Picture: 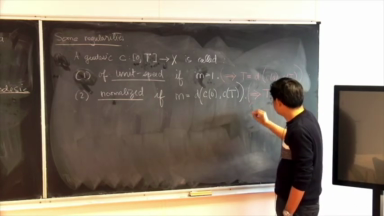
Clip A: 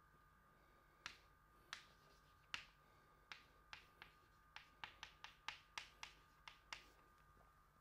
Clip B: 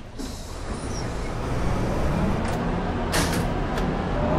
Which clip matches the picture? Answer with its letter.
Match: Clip A